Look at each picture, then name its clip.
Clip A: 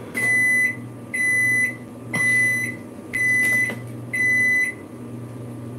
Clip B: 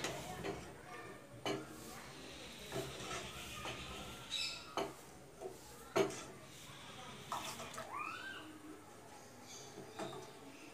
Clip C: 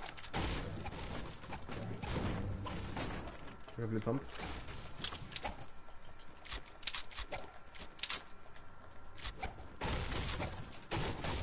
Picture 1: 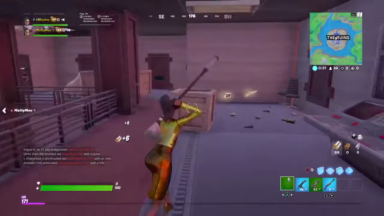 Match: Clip C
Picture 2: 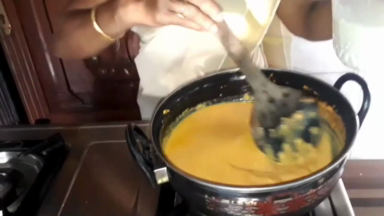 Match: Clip B